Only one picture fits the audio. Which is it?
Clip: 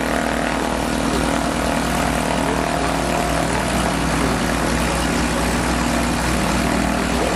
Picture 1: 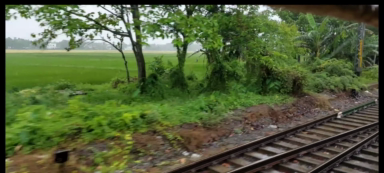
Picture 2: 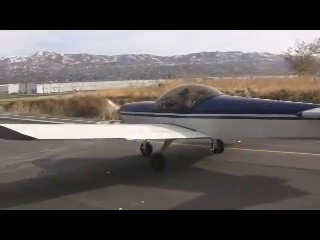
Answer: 2